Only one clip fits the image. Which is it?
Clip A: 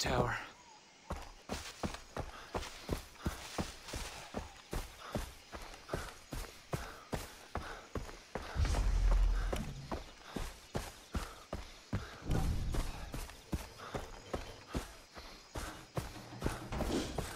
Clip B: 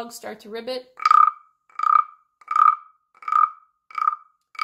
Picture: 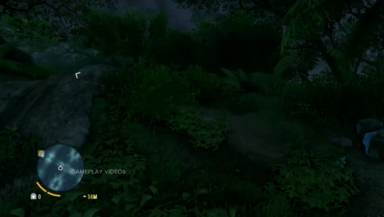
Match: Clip A